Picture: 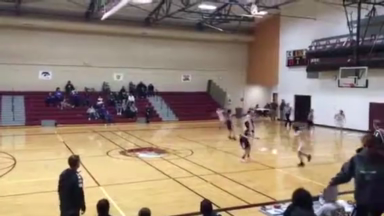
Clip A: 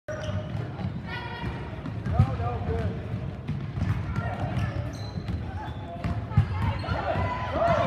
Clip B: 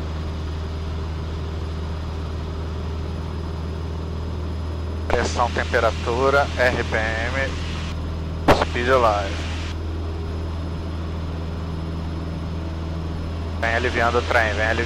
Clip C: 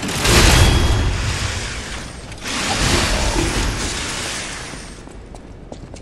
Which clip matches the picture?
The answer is A